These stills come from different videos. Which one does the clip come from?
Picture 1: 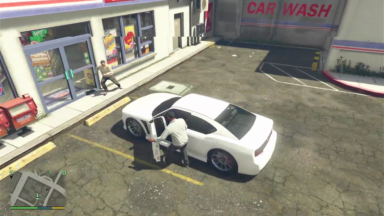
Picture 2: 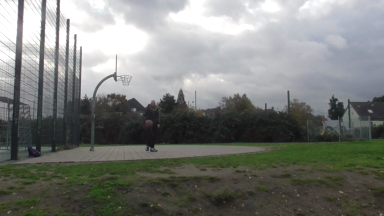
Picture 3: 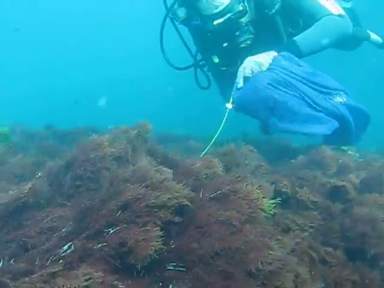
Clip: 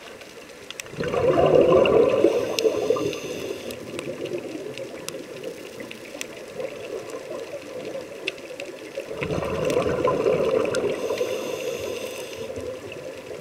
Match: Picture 3